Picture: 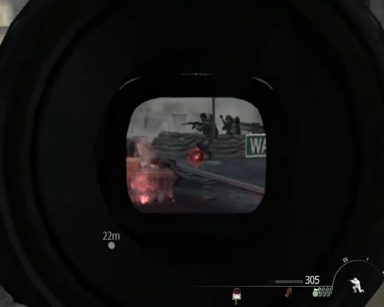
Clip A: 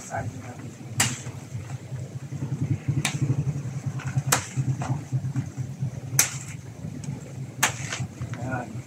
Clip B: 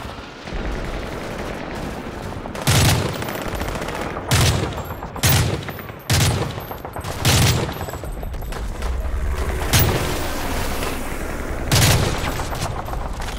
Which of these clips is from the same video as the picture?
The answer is B